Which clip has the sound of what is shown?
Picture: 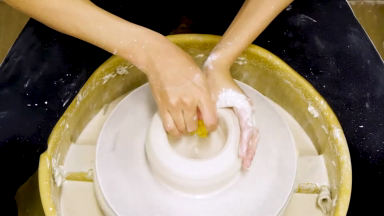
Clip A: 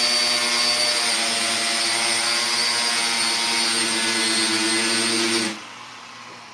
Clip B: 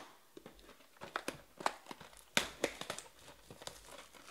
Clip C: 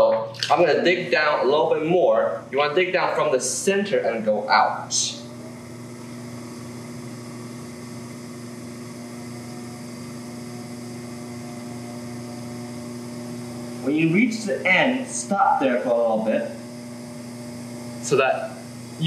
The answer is C